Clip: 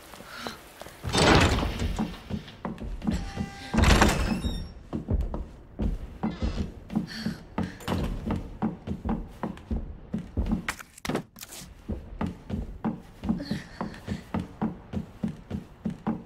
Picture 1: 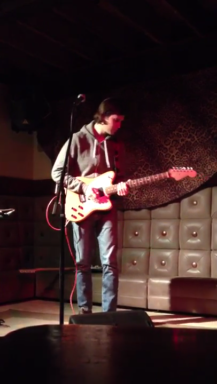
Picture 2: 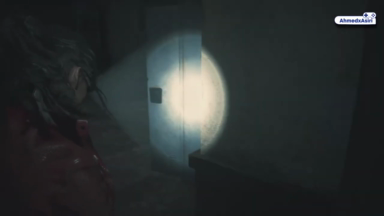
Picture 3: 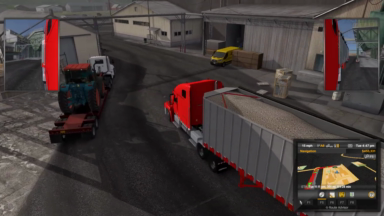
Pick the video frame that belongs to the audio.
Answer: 2